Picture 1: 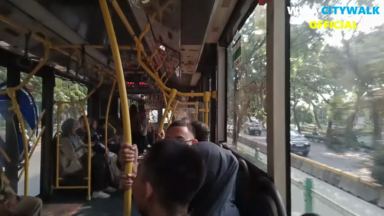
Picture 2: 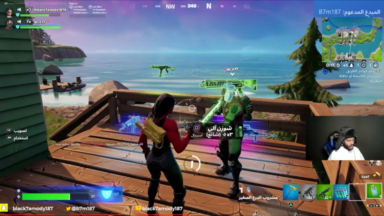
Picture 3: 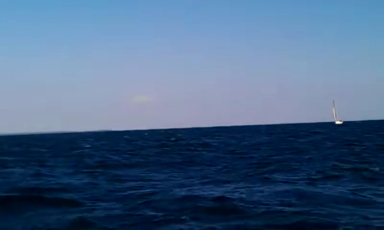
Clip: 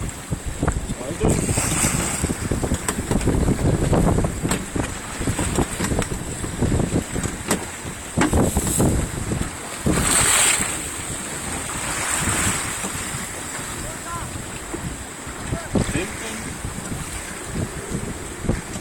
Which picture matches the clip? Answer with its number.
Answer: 3